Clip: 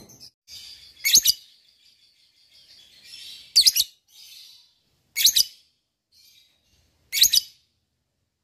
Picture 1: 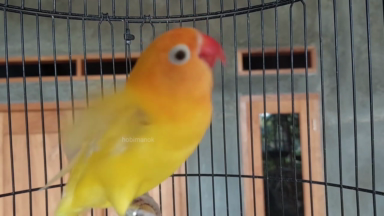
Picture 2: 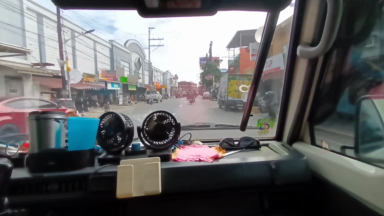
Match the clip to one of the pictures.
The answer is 1